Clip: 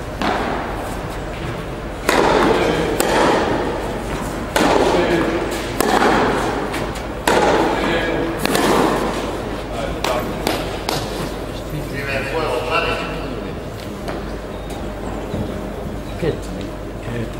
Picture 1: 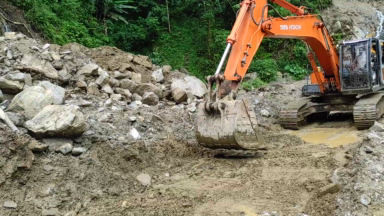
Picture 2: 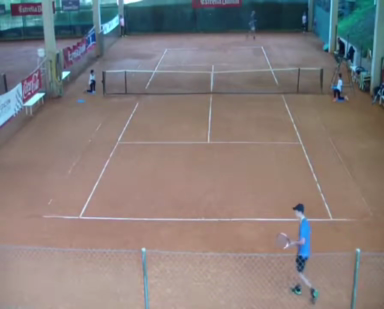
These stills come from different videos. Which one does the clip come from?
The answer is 2